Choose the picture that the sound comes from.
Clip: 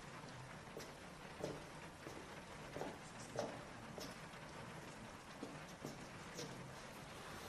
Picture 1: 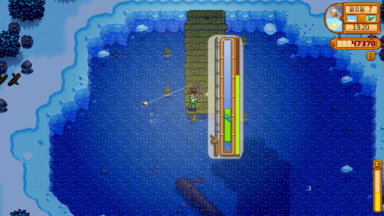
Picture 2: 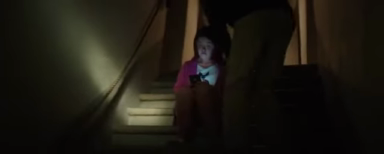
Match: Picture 2